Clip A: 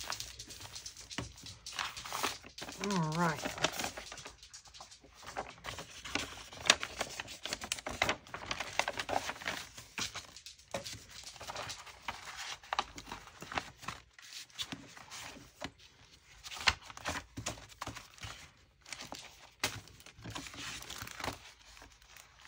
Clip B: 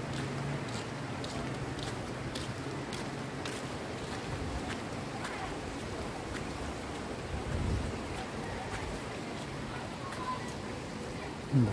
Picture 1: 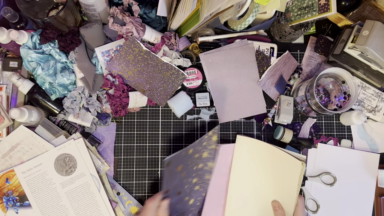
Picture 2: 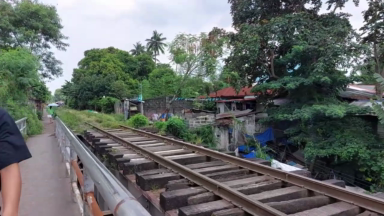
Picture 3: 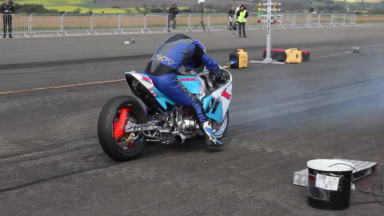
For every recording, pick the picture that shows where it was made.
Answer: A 1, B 2